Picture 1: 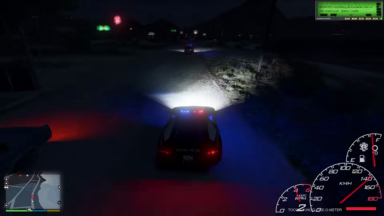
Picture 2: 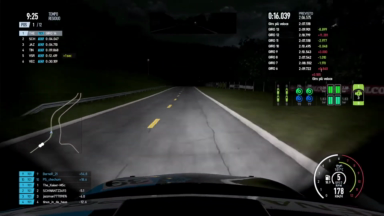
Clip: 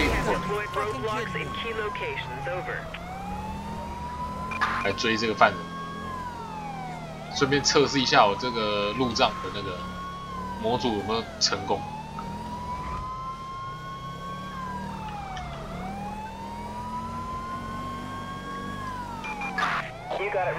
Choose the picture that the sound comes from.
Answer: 1